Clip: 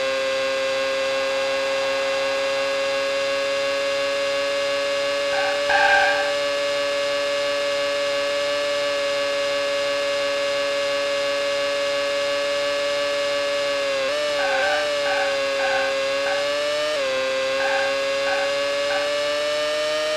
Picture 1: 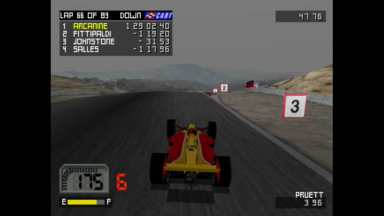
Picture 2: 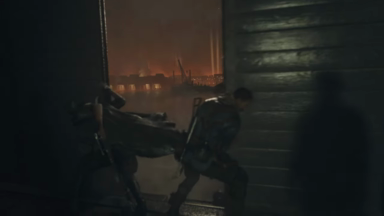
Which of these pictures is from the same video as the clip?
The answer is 1